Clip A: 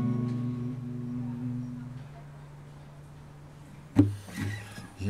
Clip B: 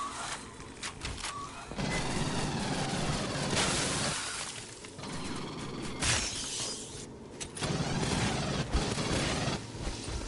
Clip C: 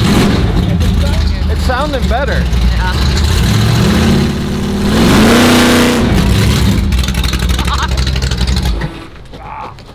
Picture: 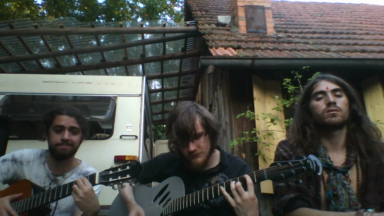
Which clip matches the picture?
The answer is A